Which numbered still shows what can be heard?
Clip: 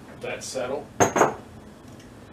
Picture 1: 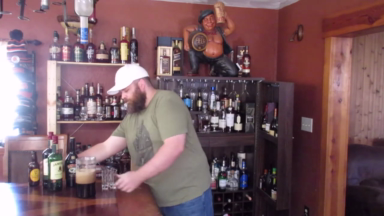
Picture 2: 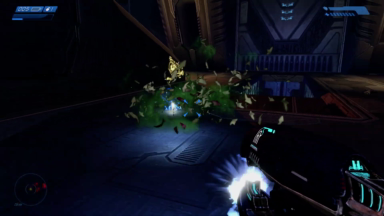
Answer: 1